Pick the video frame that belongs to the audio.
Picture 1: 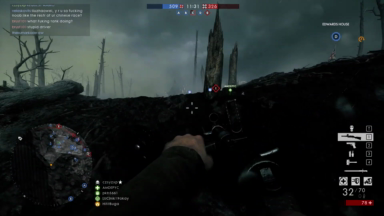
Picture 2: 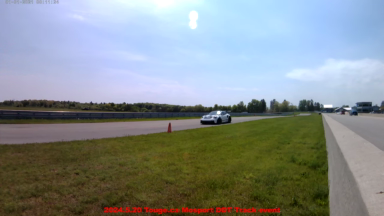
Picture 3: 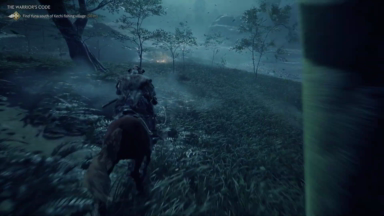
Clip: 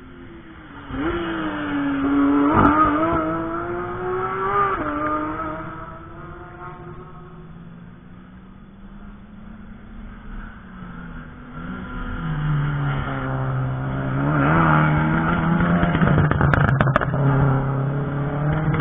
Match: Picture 2